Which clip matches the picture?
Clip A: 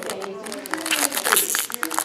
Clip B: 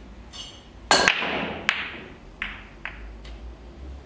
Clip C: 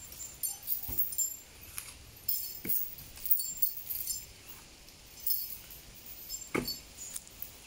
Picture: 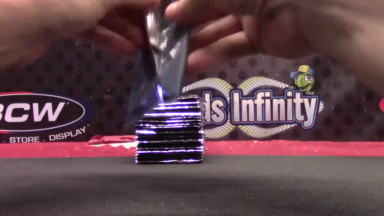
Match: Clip A